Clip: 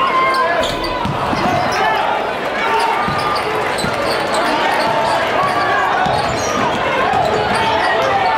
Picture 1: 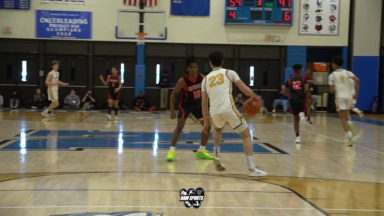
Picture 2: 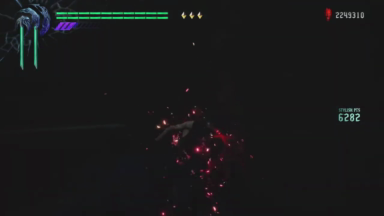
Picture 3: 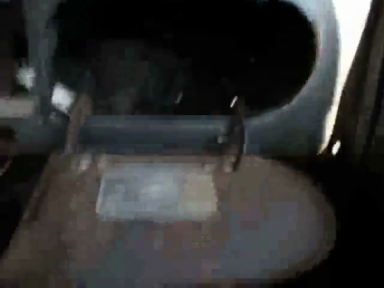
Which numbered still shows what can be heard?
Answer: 1